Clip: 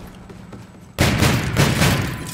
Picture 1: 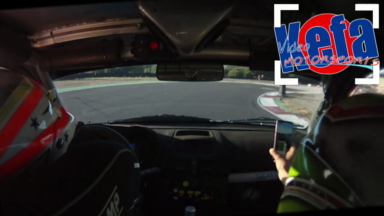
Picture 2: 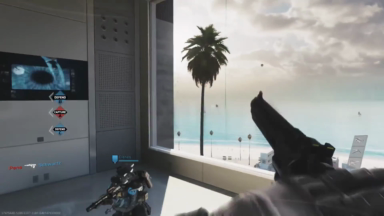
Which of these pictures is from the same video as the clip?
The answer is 2